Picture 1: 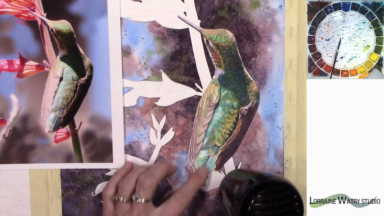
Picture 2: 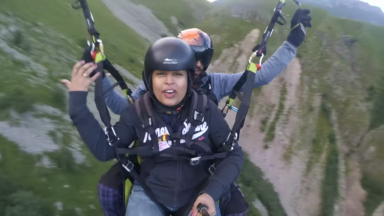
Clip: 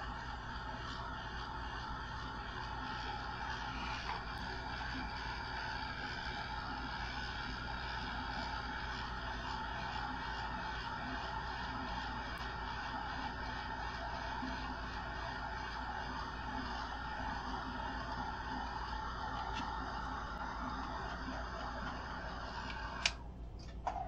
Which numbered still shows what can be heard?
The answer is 1